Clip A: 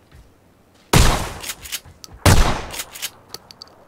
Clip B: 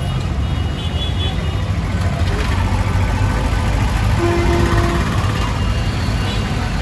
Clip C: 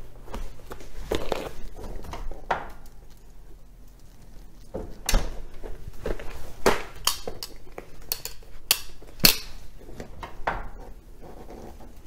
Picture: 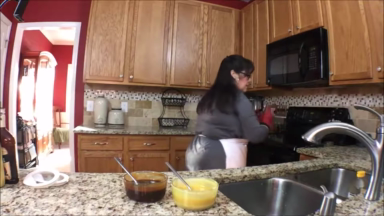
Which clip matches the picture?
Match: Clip C